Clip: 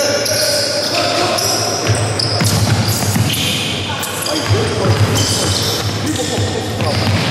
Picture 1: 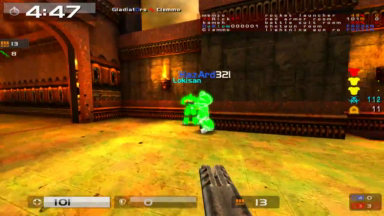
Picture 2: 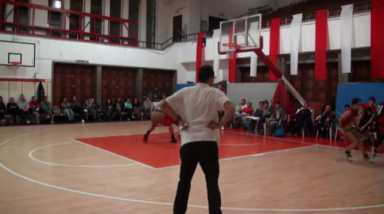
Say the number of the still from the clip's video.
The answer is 2